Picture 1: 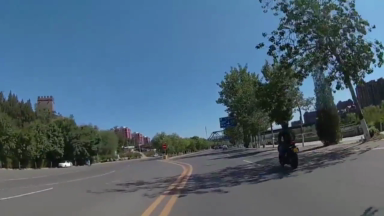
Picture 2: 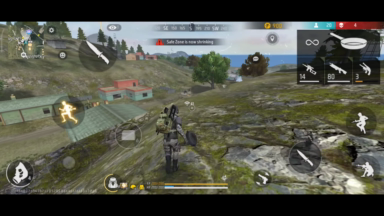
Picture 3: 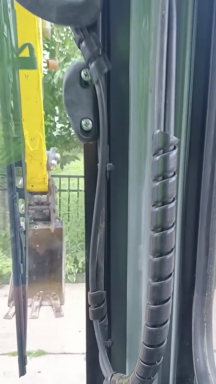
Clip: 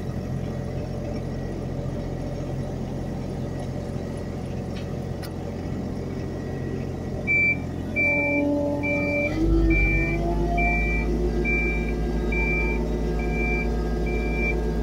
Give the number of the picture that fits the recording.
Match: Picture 3